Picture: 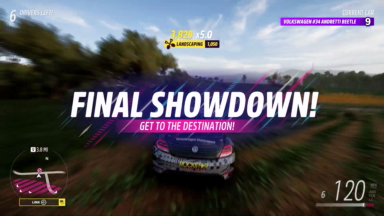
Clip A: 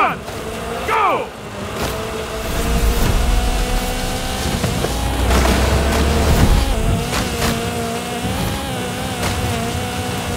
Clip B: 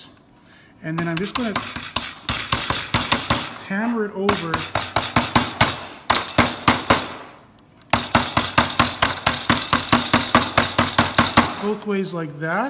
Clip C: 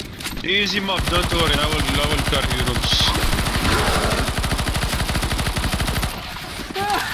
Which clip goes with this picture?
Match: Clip A